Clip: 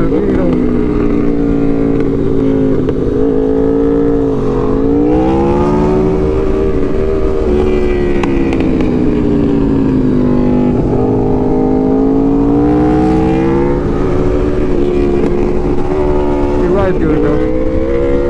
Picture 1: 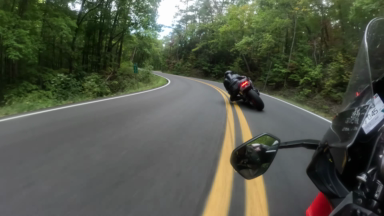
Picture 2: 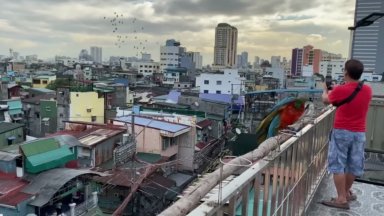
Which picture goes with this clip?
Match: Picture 1